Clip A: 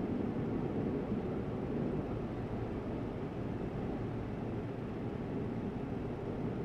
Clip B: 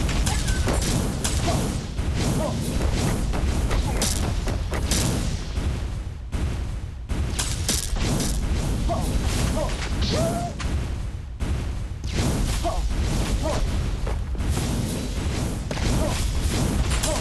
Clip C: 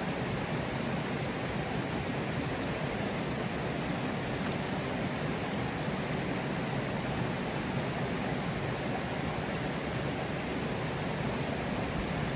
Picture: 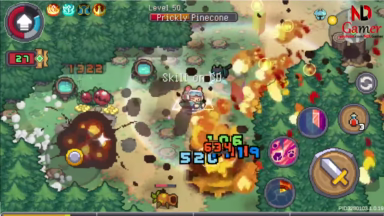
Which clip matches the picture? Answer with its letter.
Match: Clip B